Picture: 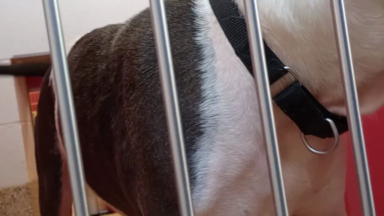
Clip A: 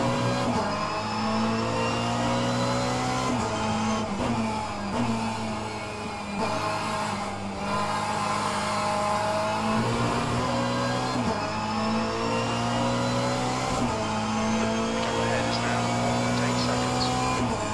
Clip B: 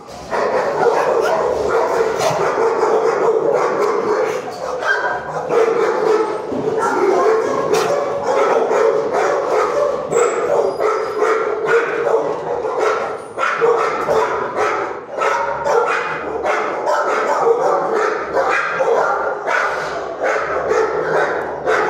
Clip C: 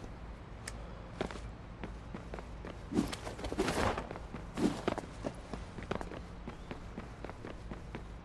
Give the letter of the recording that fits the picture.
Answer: B